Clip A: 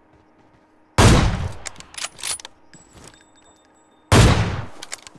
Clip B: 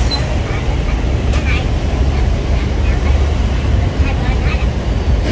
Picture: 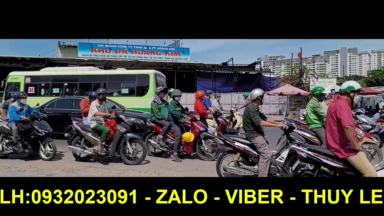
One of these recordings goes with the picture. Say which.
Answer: B